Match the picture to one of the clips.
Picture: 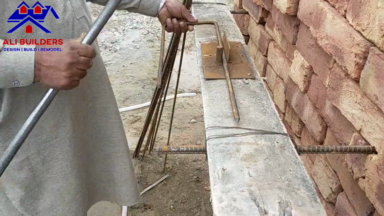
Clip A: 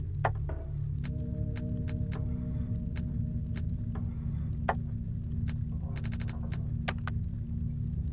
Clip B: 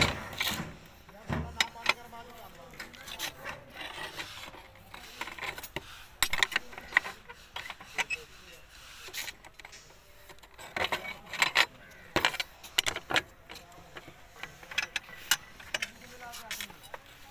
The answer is B